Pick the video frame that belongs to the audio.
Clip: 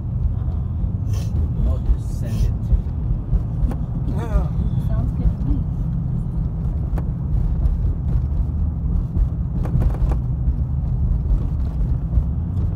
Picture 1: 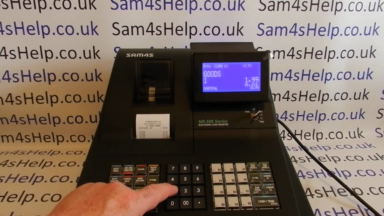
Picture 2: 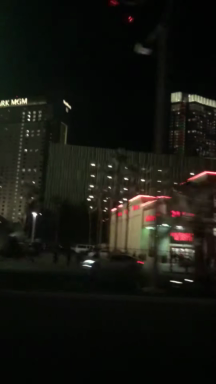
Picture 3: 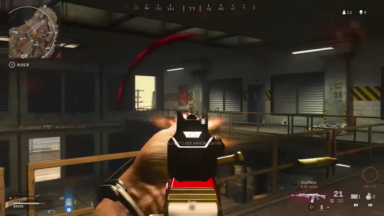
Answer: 2